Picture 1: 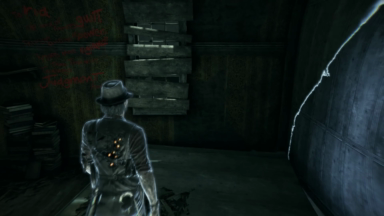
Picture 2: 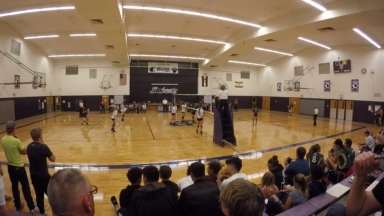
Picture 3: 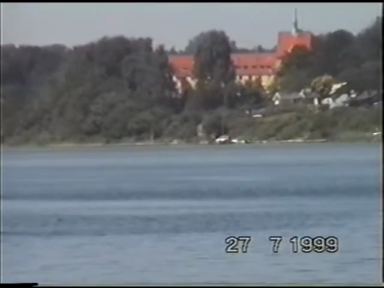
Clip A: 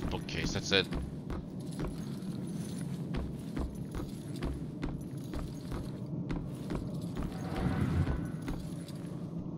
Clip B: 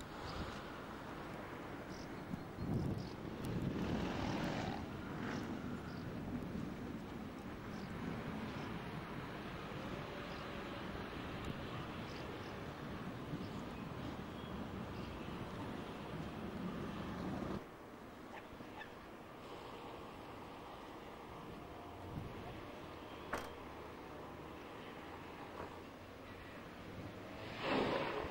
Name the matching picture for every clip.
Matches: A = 1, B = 3